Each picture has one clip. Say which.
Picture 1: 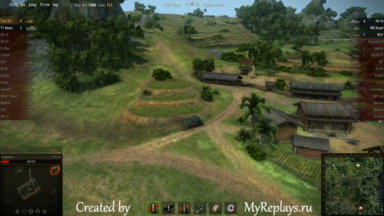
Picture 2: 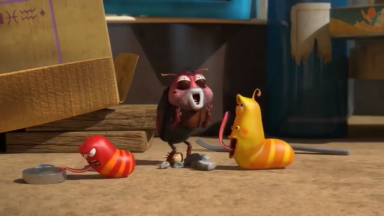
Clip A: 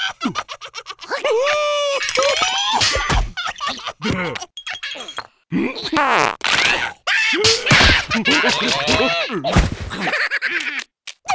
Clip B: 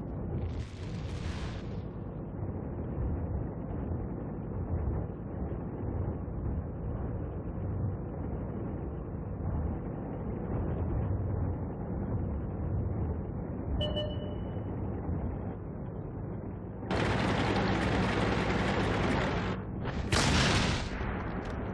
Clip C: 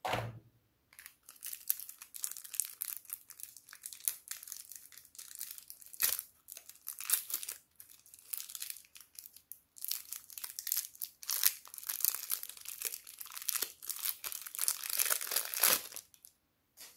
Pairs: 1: B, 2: A